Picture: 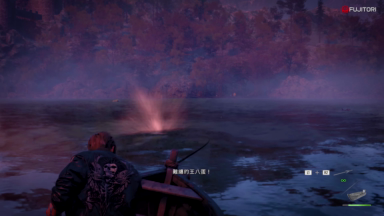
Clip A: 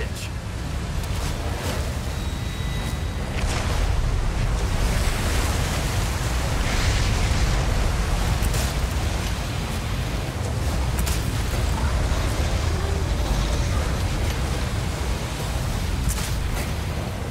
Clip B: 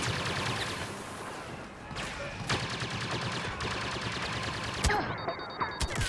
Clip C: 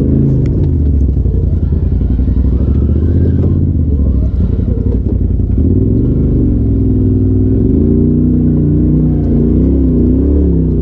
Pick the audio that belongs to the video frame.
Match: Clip A